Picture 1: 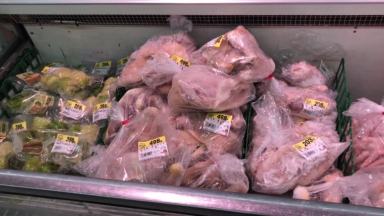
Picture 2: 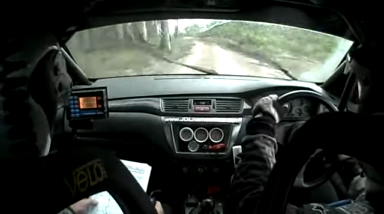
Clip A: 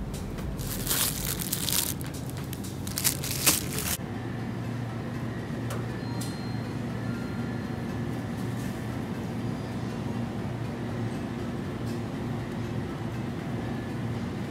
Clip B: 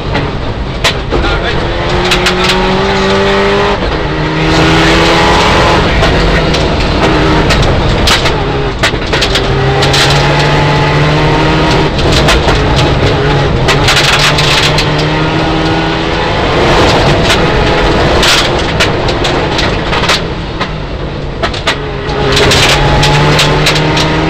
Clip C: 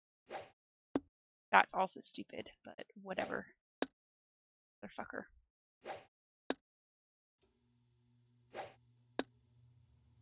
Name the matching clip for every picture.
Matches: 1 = A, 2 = B